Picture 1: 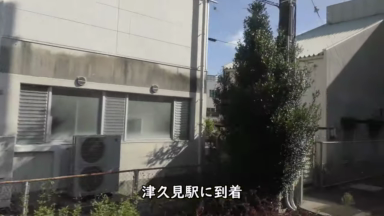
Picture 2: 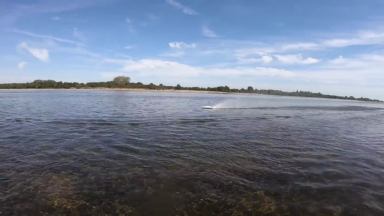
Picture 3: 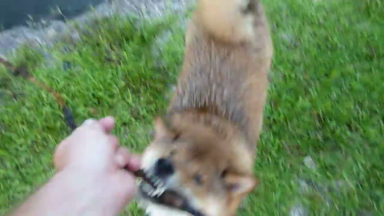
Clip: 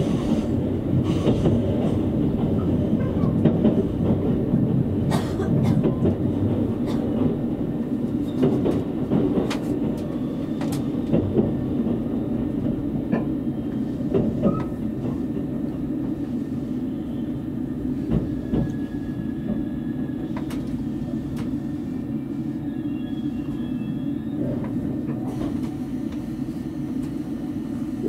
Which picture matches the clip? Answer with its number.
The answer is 1